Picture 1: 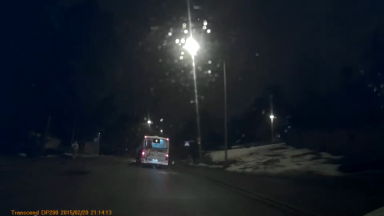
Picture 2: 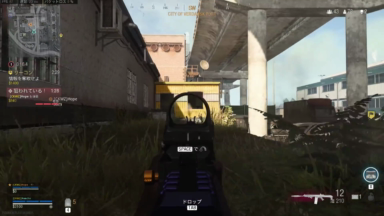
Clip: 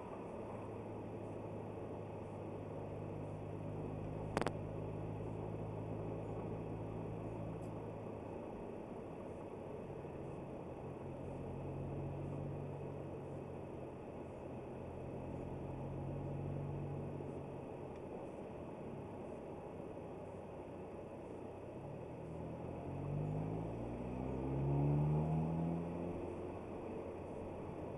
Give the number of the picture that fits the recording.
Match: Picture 1